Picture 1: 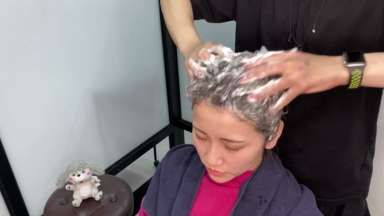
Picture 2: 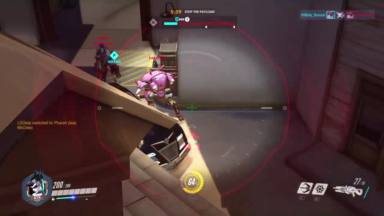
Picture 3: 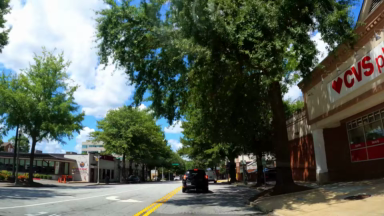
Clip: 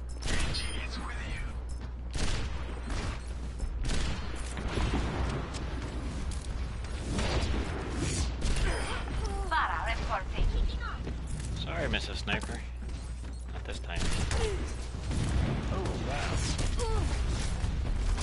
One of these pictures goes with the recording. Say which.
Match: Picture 2